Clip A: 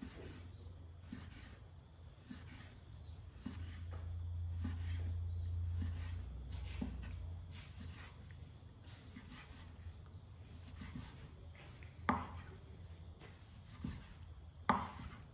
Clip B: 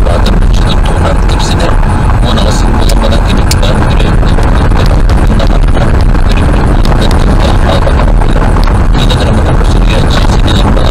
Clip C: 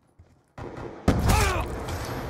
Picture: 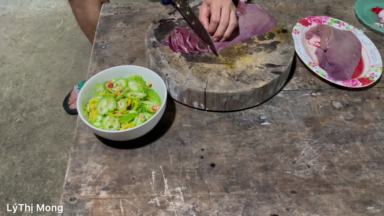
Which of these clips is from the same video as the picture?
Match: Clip A